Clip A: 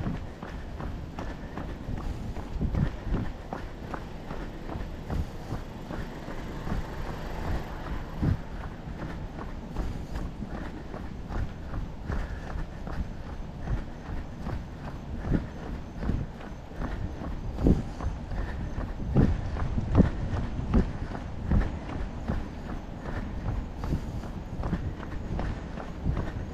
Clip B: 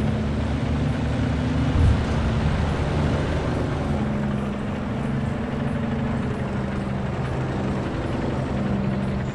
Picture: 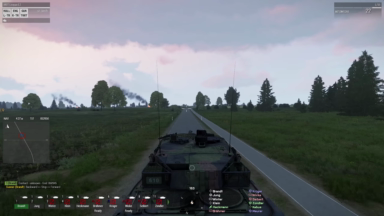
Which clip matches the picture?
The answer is B